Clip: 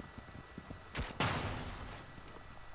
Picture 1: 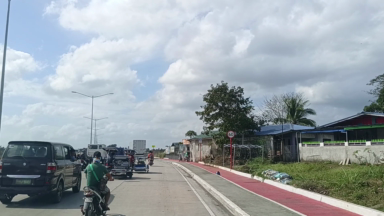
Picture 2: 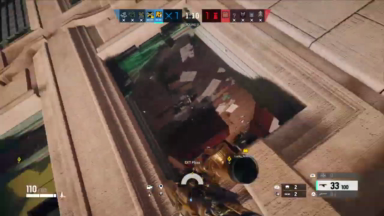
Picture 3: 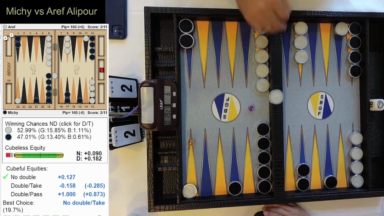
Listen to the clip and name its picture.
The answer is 2